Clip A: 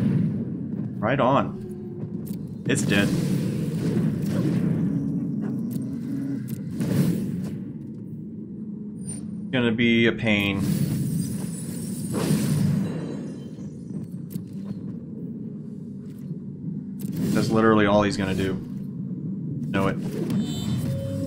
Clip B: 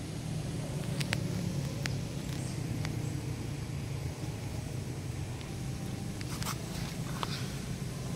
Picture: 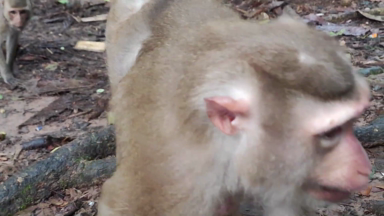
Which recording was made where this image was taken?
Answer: B